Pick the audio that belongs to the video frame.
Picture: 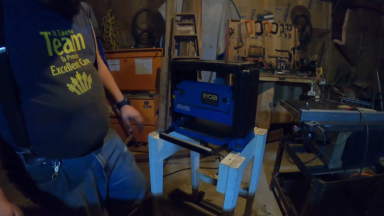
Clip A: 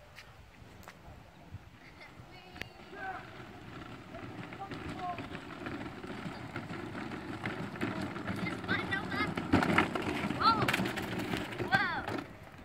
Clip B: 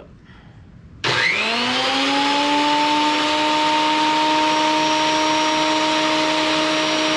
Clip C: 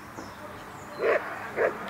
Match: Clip B